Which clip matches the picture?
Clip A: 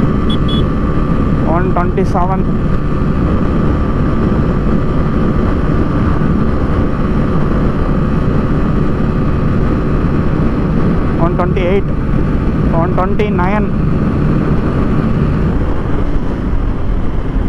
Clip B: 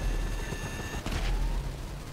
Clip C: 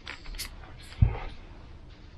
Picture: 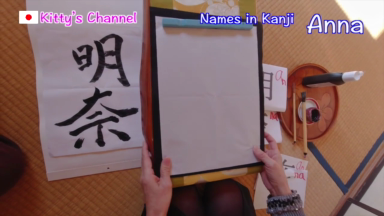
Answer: C